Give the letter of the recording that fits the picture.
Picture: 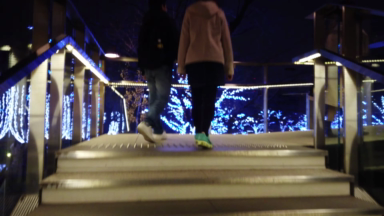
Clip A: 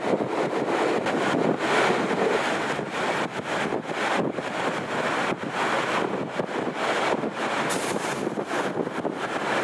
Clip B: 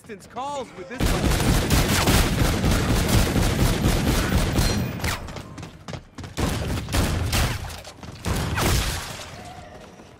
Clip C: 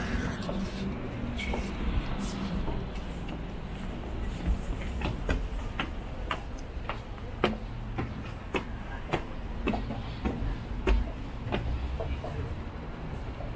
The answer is C